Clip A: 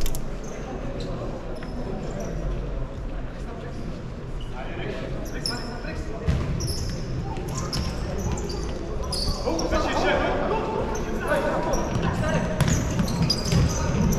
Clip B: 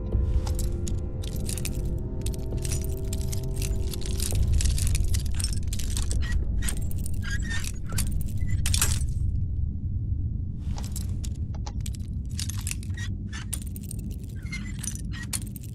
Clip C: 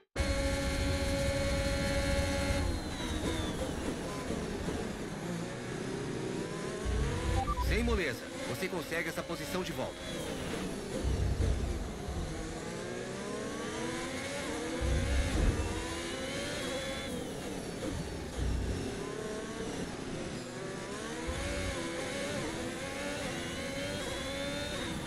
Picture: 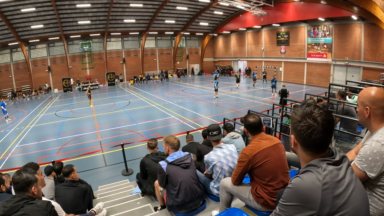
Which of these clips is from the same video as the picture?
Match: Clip A